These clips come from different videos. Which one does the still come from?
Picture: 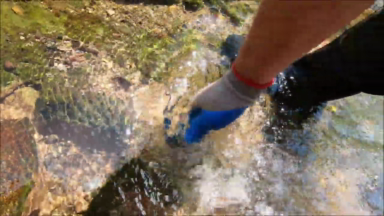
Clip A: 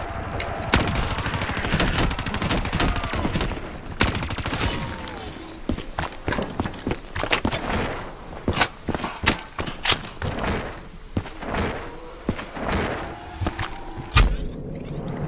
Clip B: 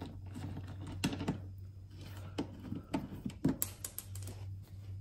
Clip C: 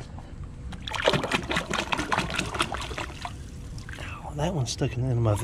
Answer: C